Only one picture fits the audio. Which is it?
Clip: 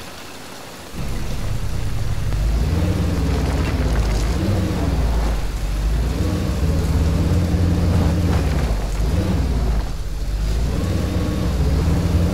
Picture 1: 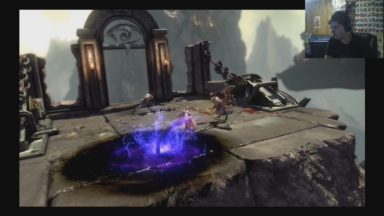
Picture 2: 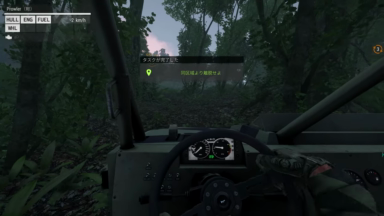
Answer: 2